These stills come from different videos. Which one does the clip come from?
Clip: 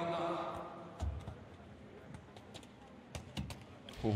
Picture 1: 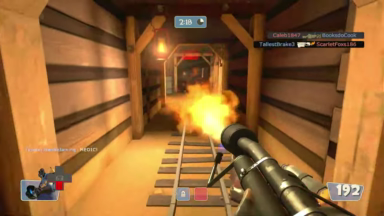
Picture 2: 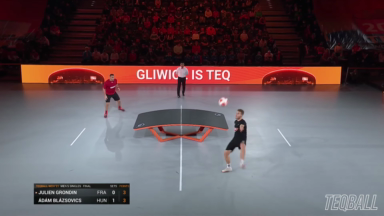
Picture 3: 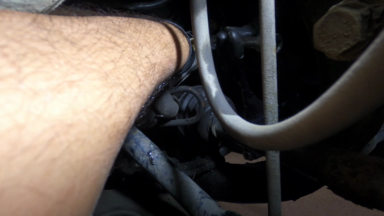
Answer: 2